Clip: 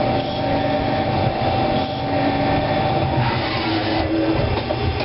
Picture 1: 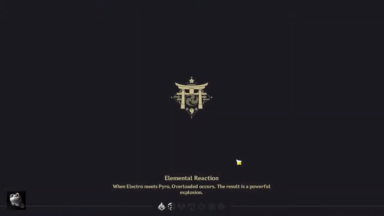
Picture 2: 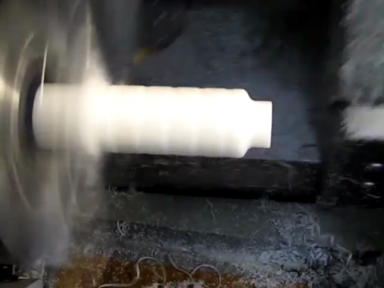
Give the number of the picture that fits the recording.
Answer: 2